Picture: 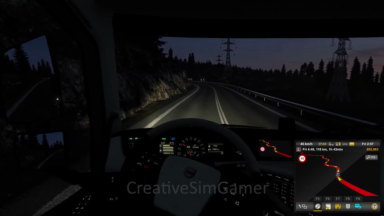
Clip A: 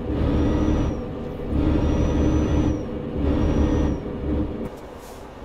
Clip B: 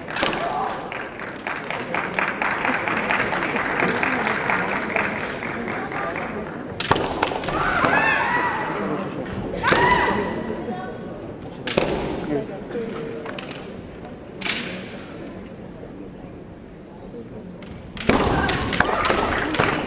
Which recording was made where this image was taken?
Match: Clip A